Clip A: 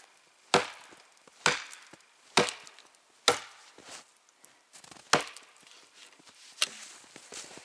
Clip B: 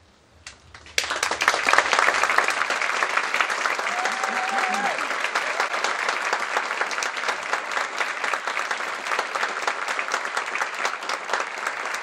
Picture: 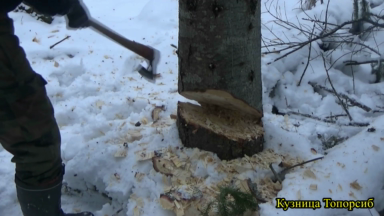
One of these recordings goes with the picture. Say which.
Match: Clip A